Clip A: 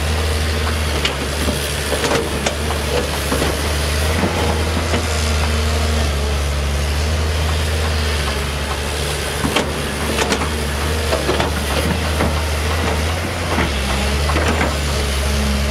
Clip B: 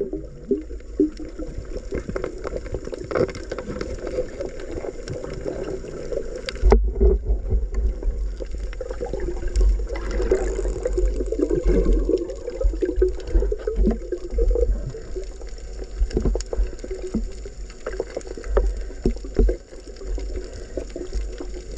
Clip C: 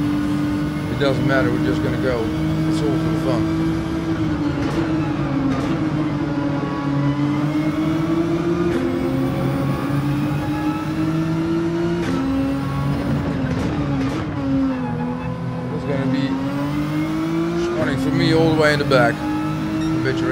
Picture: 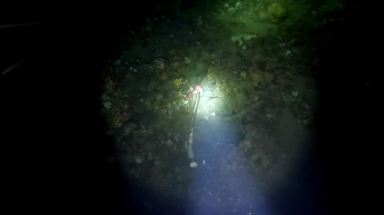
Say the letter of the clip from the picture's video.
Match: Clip B